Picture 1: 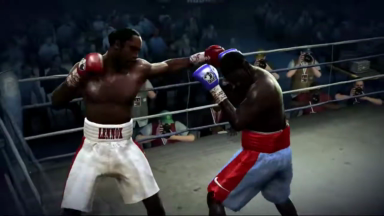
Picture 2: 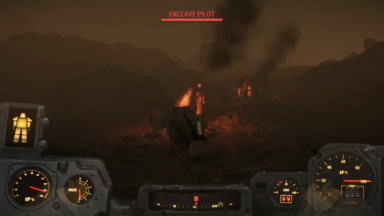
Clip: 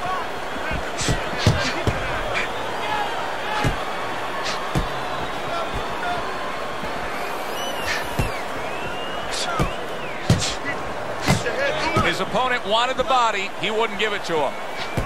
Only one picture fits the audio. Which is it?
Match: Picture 1